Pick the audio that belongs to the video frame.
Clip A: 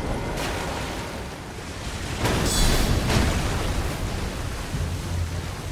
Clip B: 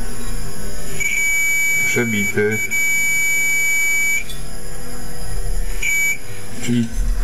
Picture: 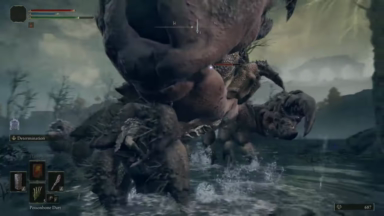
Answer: A